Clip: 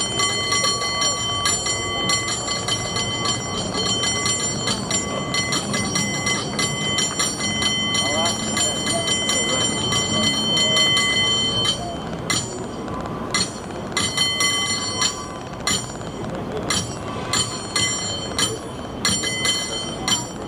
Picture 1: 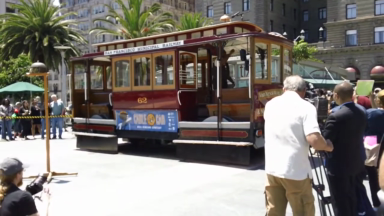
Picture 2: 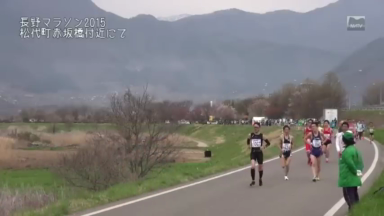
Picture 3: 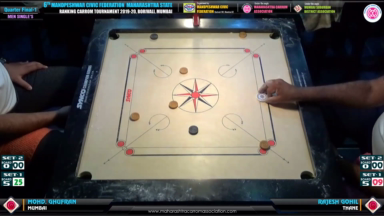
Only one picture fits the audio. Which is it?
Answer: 1